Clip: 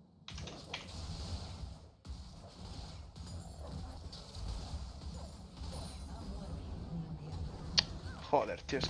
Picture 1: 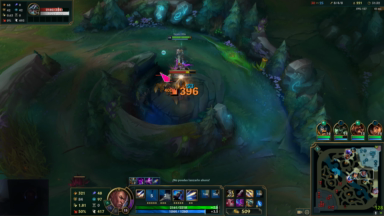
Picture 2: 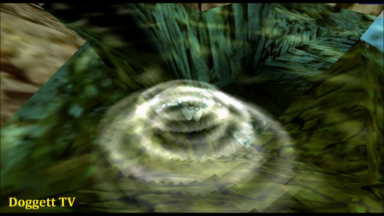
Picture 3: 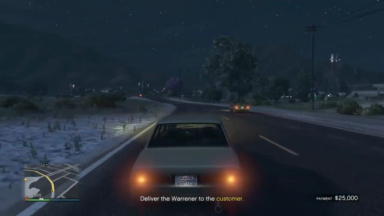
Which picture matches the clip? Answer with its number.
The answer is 1